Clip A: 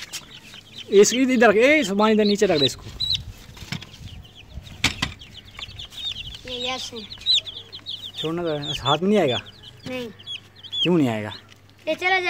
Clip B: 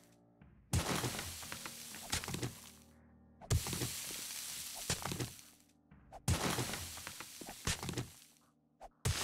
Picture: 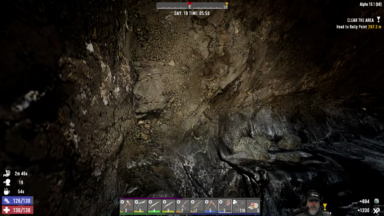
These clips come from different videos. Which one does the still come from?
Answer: B